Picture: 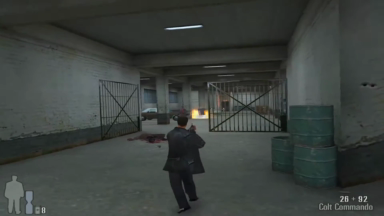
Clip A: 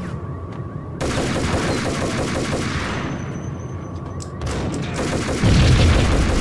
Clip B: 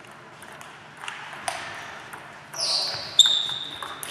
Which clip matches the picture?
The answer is A